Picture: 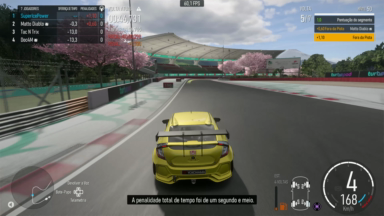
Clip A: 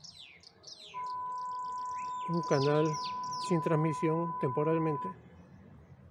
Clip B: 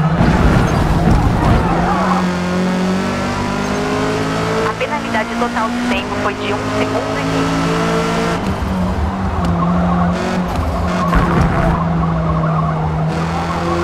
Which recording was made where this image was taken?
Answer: B